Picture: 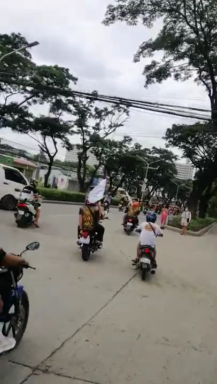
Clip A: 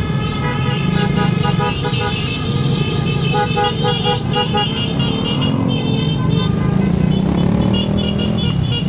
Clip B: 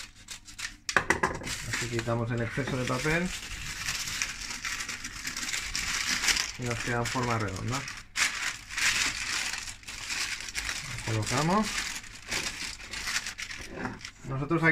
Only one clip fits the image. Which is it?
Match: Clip A